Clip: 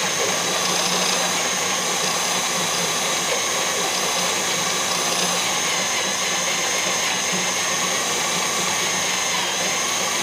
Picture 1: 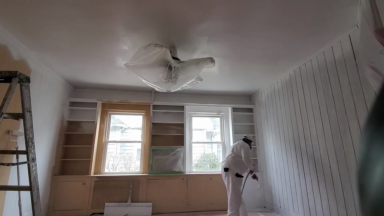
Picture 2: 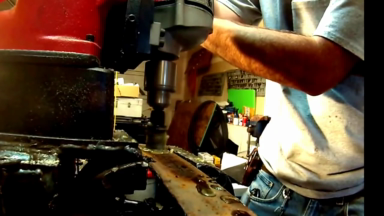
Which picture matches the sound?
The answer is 2